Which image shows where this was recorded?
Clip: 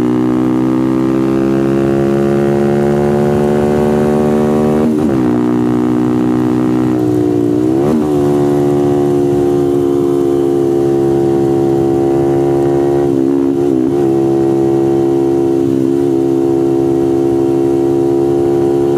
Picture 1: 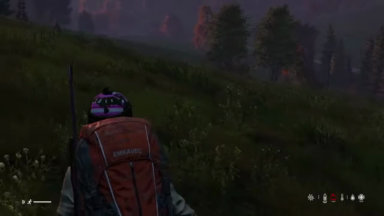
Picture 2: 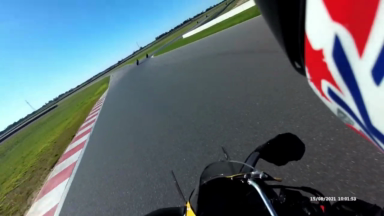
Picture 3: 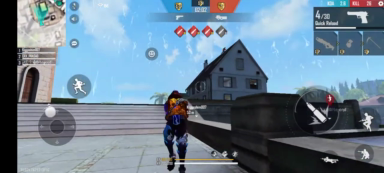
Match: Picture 2